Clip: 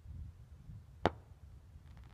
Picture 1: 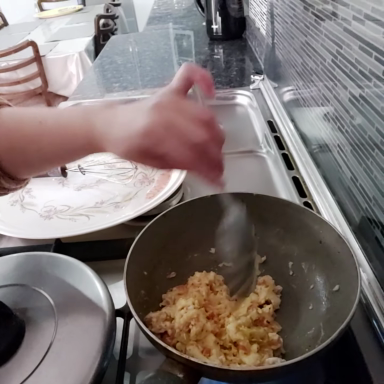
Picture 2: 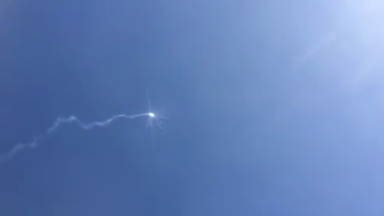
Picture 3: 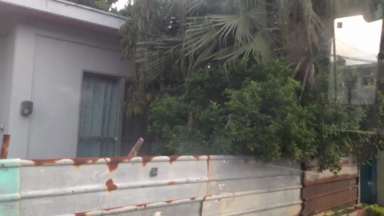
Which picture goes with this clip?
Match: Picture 2